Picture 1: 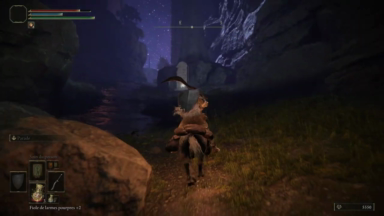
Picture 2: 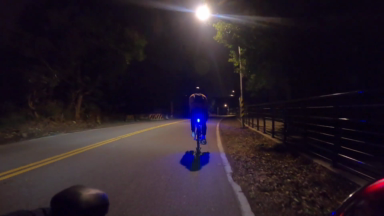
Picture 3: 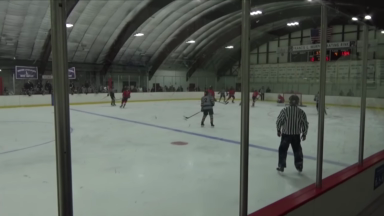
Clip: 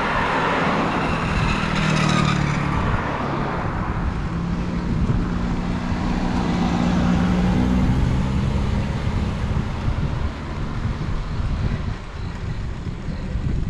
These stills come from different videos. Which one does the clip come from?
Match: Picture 2